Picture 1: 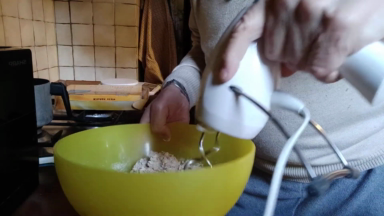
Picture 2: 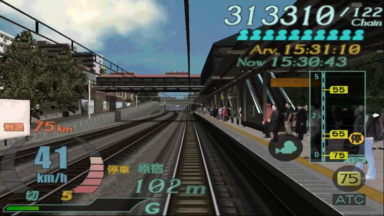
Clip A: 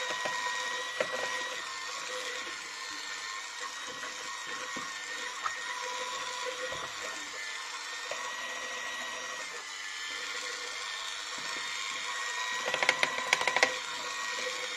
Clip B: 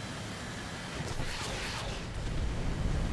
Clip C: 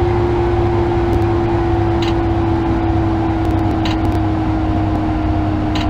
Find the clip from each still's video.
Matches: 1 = A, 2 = C